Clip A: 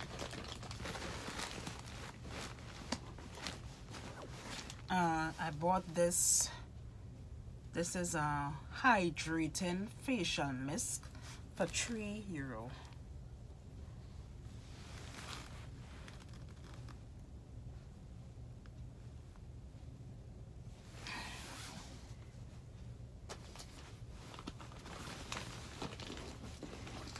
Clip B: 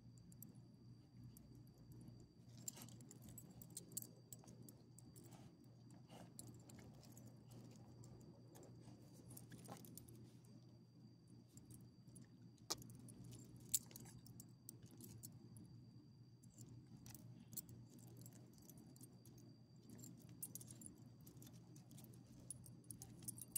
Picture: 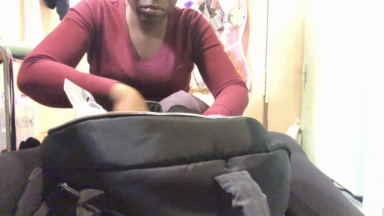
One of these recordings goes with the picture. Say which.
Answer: A